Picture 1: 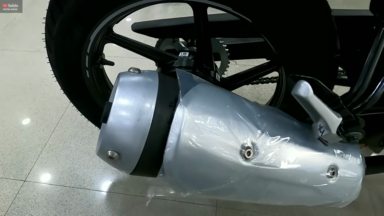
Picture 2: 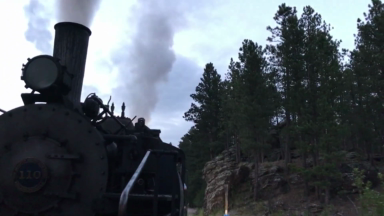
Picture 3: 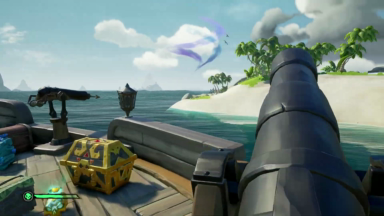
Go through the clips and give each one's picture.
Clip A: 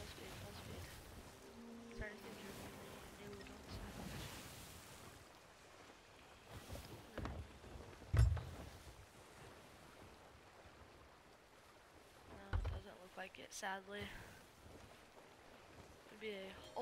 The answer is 3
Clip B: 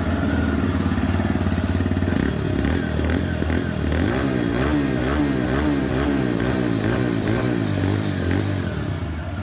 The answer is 1